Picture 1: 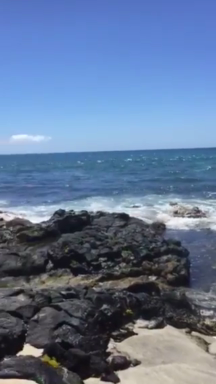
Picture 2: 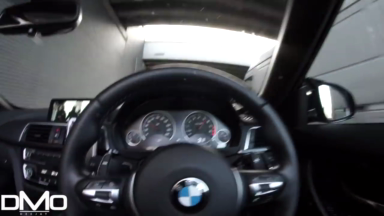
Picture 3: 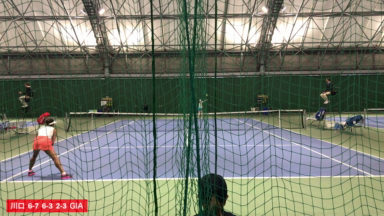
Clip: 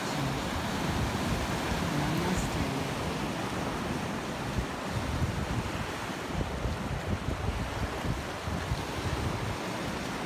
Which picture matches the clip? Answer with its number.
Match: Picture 1